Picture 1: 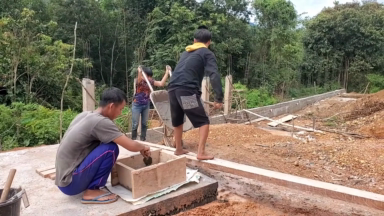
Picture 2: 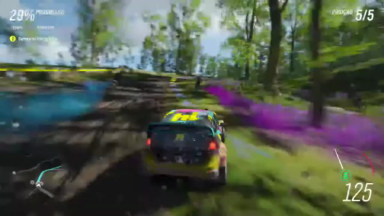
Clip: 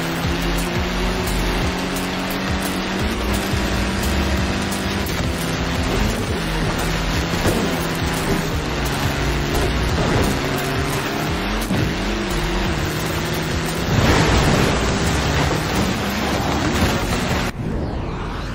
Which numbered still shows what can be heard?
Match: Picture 2